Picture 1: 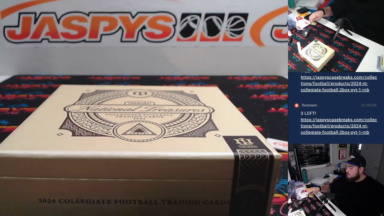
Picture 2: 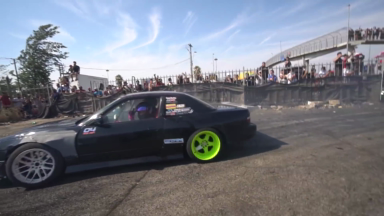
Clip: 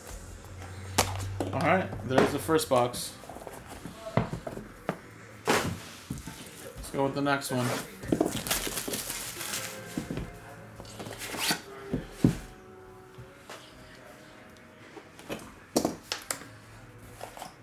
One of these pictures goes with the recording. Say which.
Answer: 1